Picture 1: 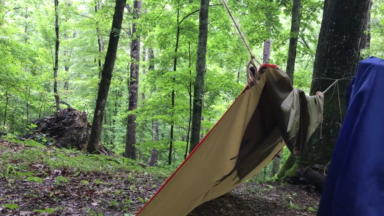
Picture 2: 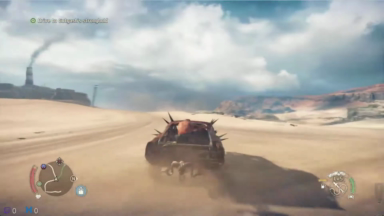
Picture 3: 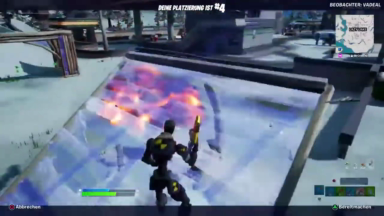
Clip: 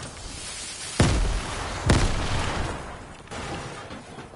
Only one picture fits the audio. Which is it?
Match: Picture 3